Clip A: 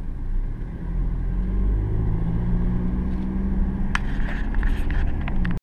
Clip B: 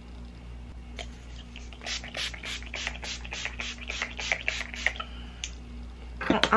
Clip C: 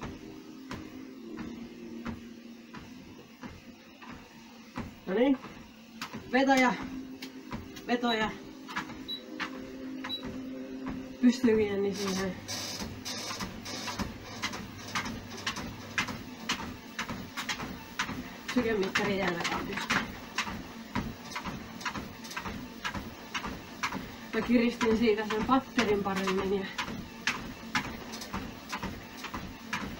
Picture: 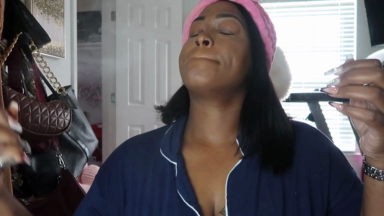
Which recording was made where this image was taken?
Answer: B